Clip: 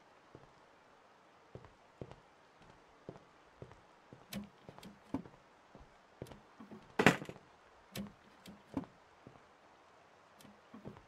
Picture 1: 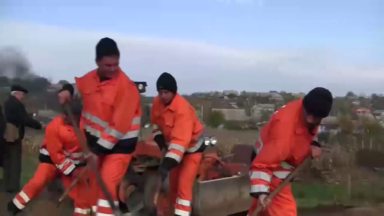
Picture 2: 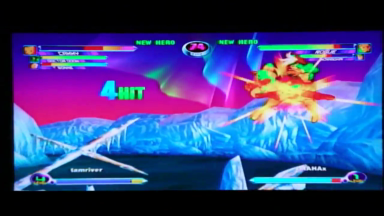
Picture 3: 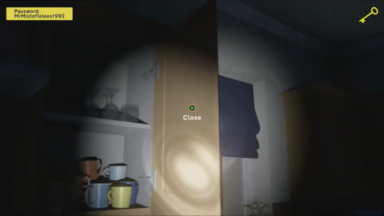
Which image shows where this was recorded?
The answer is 3